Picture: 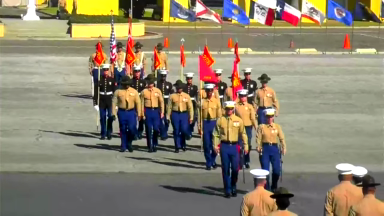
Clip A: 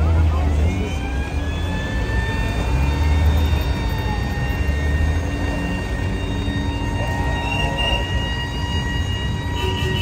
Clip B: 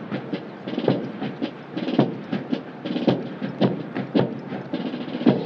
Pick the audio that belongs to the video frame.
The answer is B